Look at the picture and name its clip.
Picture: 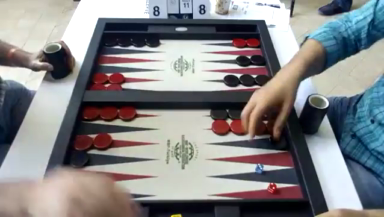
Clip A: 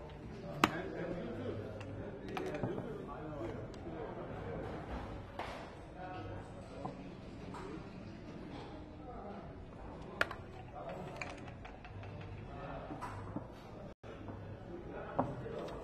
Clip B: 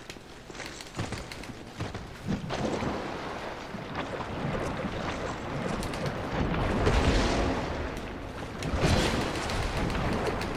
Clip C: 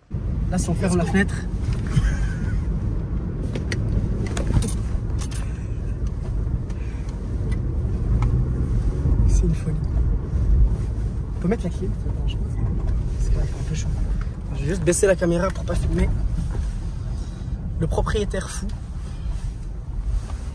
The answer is A